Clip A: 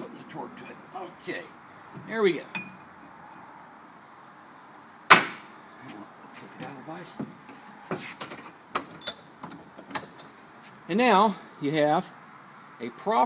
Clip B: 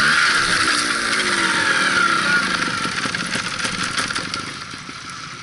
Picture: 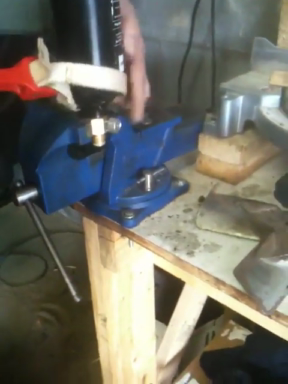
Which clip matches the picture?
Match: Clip A